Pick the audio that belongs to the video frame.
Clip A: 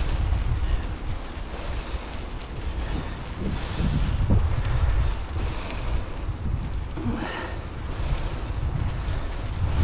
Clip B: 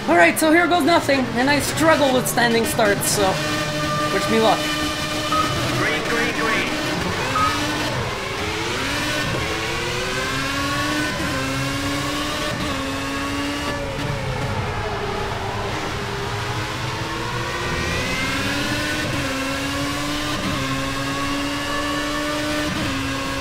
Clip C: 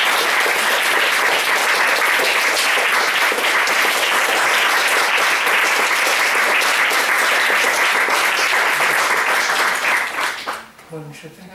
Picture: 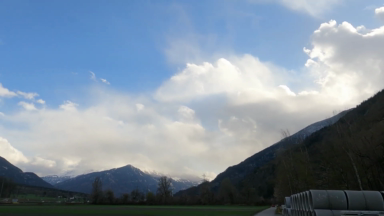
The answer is A